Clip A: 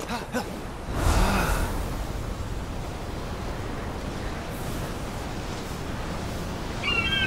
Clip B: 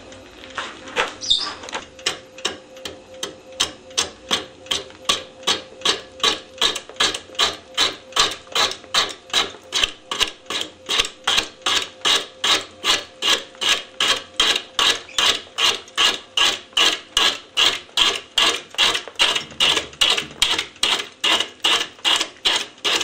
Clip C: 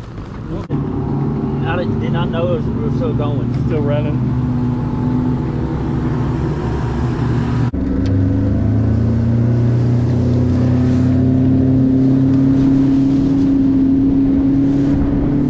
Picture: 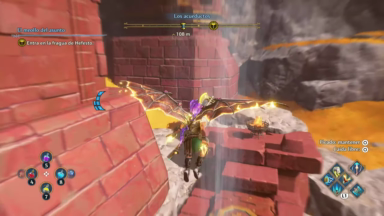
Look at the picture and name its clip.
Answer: A